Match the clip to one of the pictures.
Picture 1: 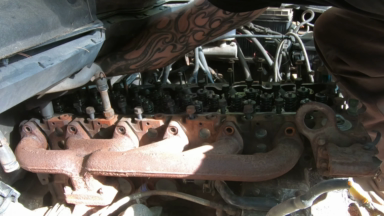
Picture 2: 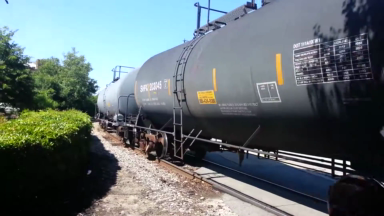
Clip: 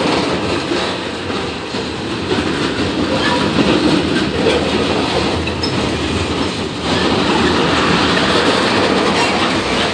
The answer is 2